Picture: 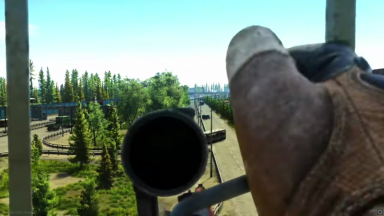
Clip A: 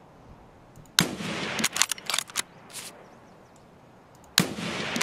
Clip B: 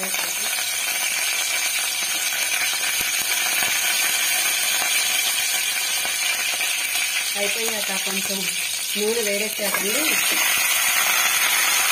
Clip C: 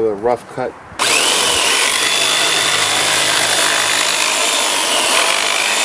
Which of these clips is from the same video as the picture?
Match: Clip A